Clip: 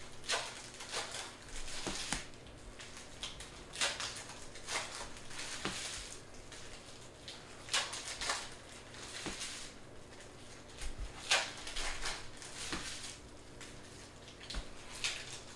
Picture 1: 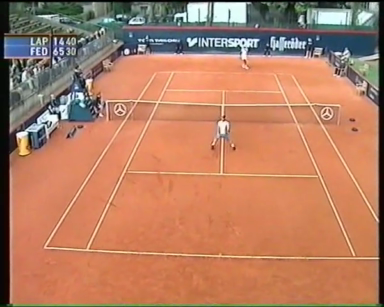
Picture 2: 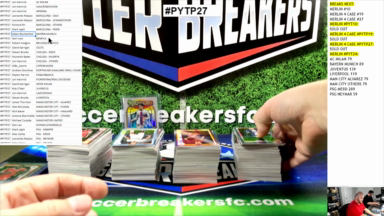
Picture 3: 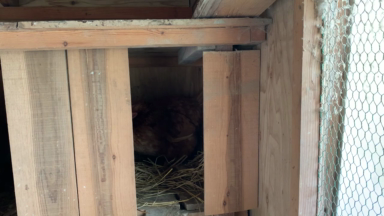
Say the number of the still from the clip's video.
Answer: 2